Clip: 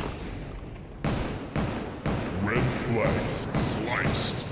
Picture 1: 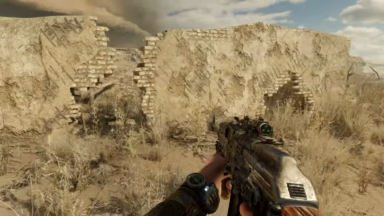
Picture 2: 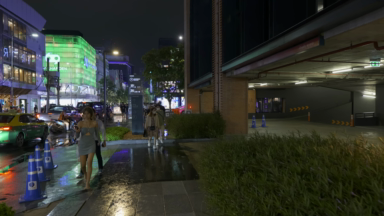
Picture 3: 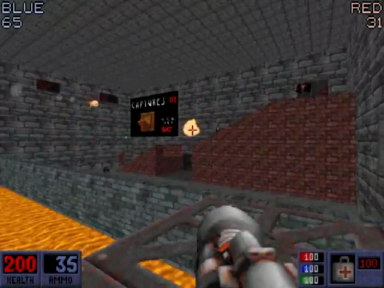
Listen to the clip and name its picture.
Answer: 3